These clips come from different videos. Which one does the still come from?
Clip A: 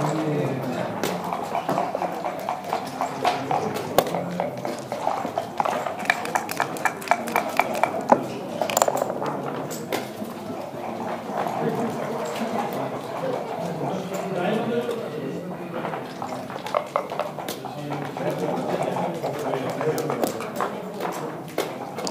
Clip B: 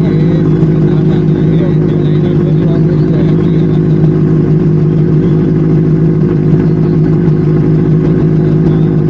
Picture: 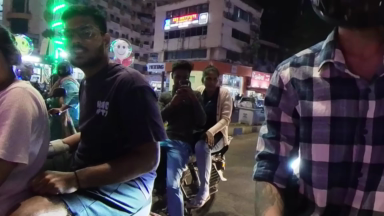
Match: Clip B